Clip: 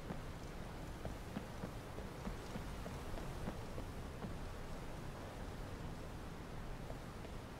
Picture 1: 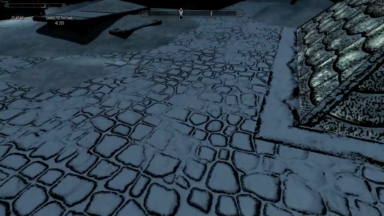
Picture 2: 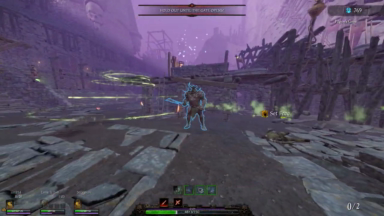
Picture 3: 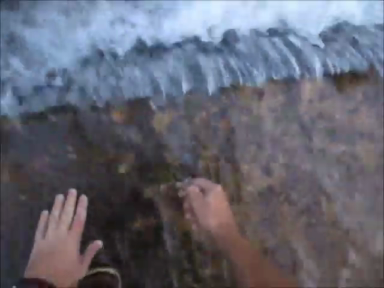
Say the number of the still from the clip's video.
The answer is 1